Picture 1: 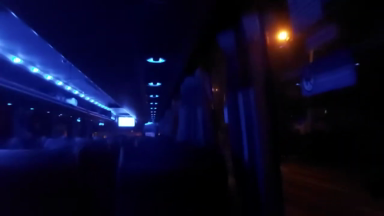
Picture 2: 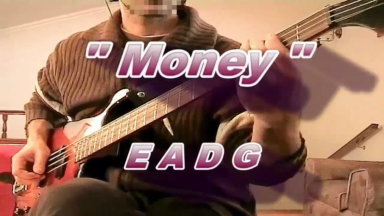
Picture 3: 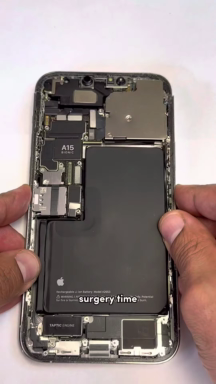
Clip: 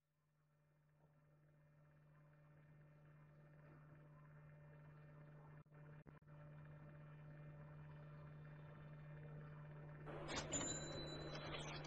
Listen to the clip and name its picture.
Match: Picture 2